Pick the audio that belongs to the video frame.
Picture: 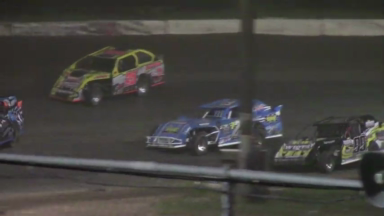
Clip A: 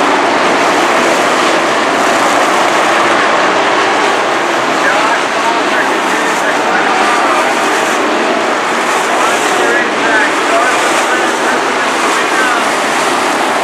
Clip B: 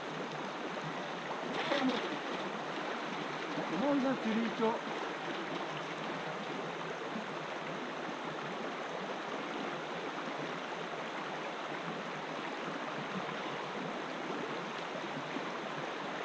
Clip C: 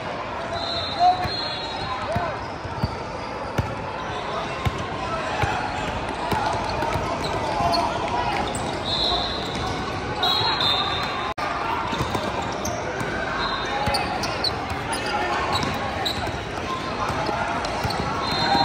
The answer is A